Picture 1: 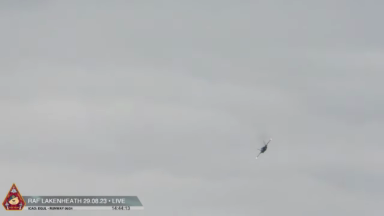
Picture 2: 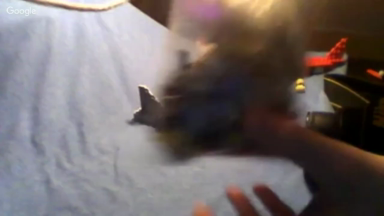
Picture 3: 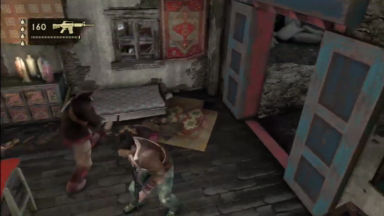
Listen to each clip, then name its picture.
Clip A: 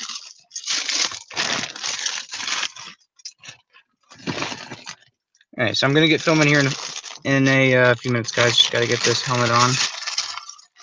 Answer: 2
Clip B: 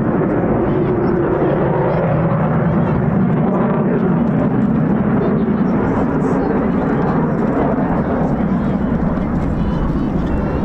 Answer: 1